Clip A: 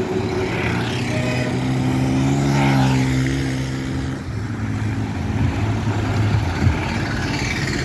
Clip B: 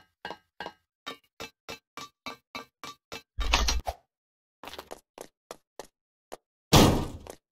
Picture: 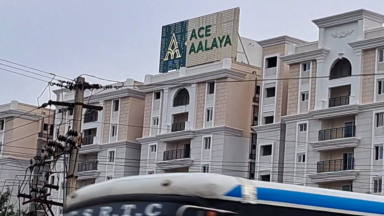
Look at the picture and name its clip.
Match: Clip A